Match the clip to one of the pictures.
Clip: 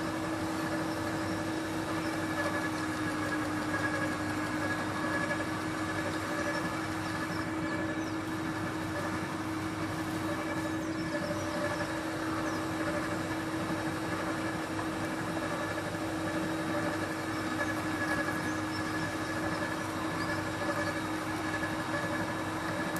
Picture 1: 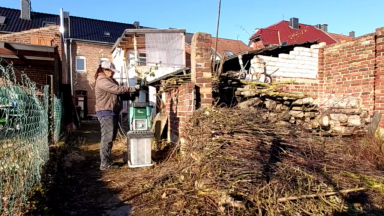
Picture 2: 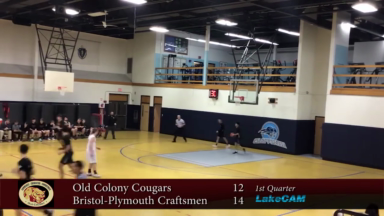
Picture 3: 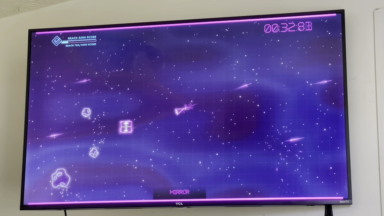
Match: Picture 1